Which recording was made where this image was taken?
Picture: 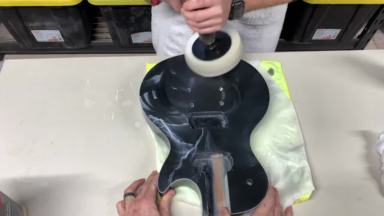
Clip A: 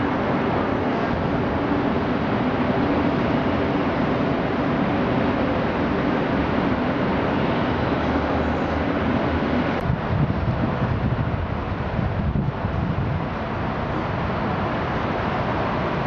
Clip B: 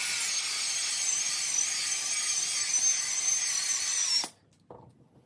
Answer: B